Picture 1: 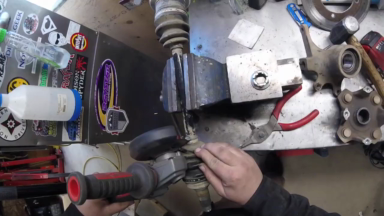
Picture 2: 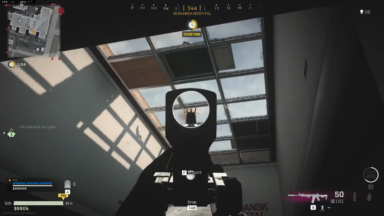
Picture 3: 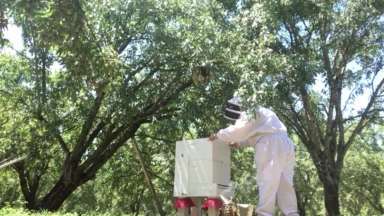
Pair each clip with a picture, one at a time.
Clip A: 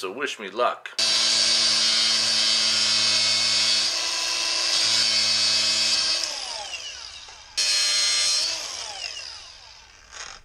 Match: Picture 1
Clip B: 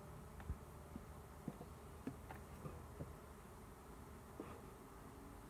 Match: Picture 3